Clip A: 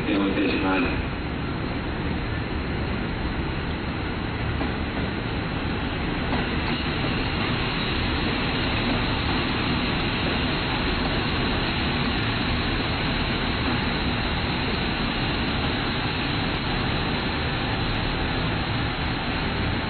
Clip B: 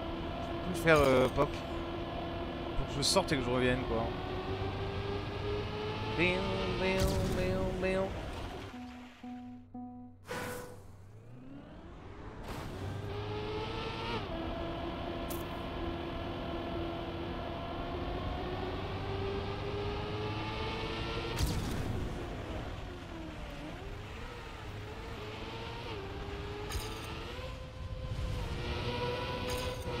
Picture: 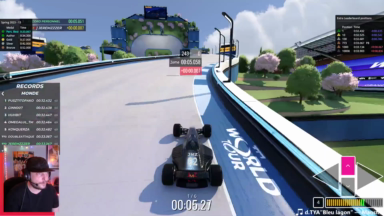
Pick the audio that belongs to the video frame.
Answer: B